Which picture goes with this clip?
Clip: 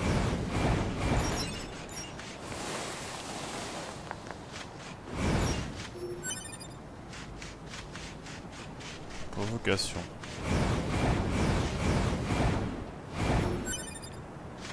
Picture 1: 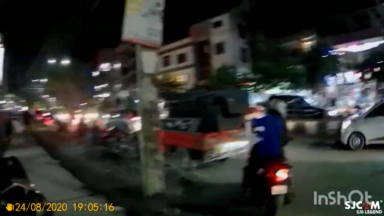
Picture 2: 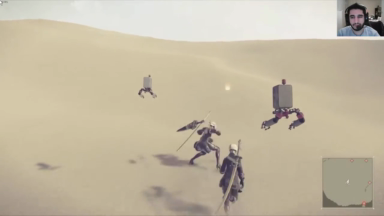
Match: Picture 2